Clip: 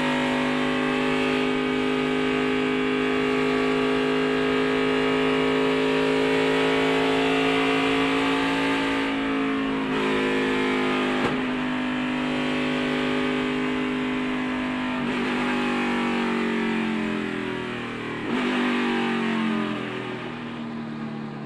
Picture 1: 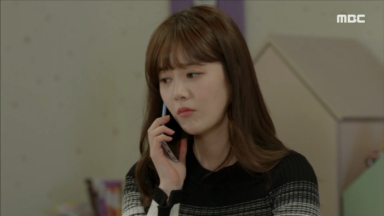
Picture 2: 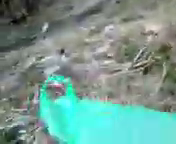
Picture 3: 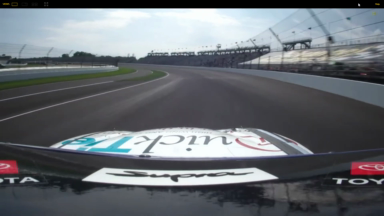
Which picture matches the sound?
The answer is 3